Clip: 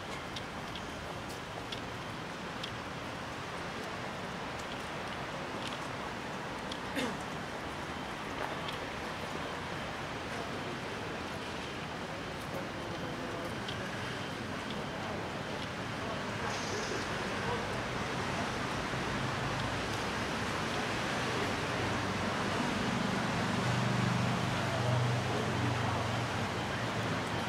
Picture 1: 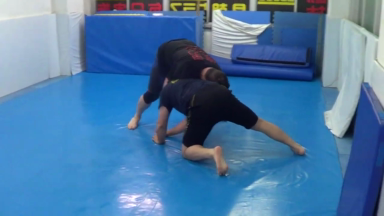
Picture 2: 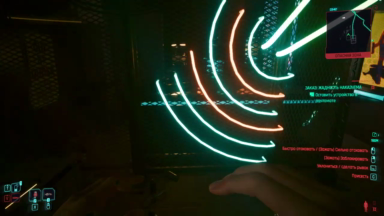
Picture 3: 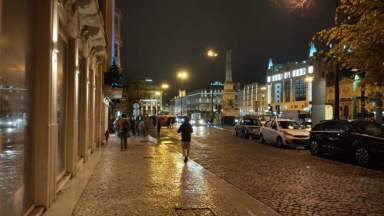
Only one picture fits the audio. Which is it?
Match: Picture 3